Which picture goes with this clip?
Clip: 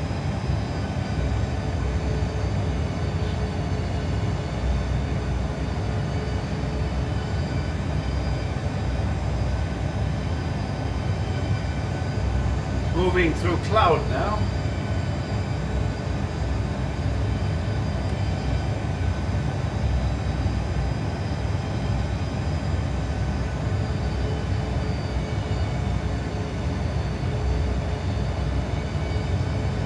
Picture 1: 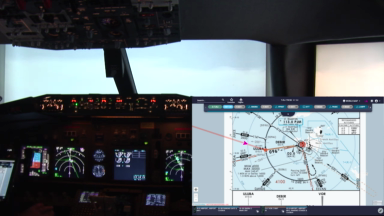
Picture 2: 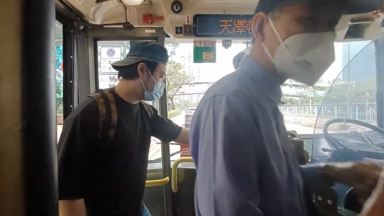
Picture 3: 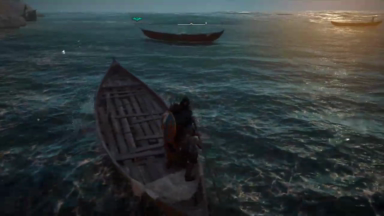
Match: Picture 1